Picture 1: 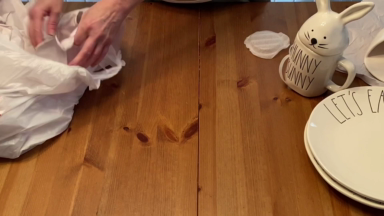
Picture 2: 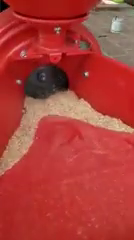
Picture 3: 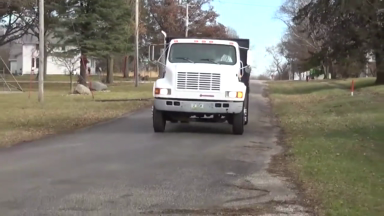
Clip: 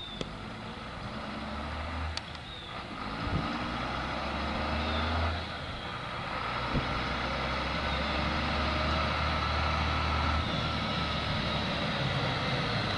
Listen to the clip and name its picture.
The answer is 3